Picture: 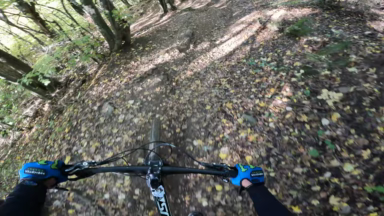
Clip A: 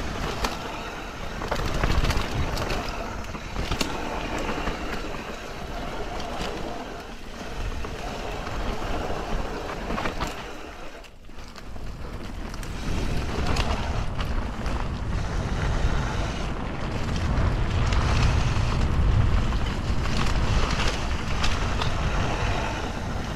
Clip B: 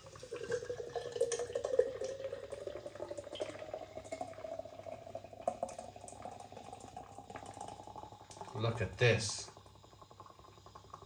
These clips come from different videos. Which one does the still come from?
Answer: A